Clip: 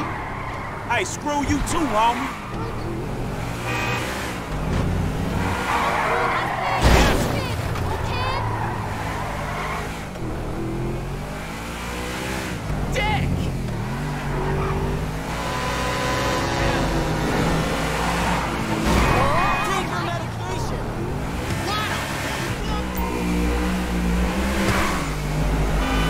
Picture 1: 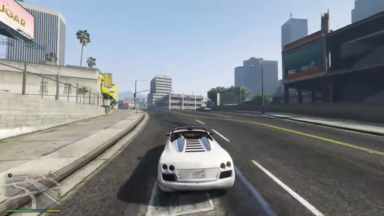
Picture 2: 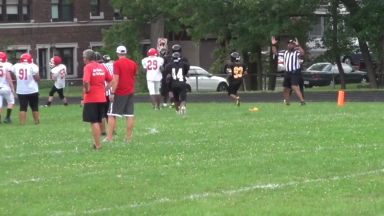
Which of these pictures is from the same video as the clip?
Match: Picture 1